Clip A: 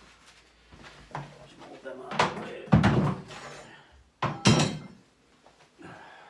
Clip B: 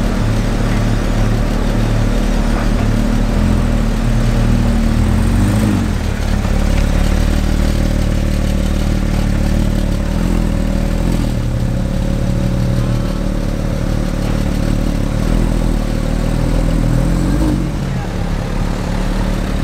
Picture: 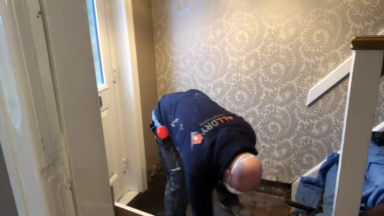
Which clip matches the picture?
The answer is A